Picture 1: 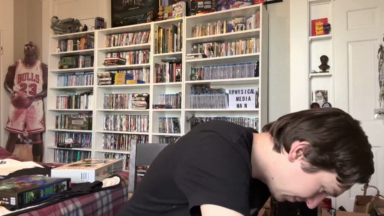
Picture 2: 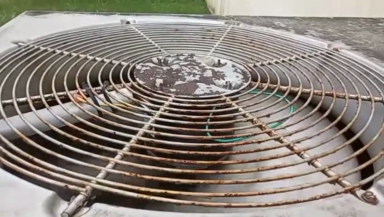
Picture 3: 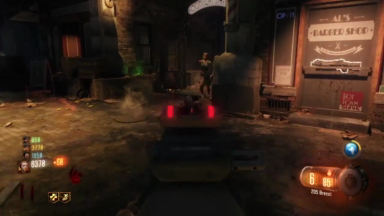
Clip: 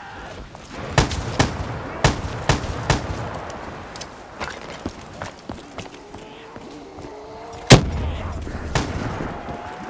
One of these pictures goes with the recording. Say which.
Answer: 3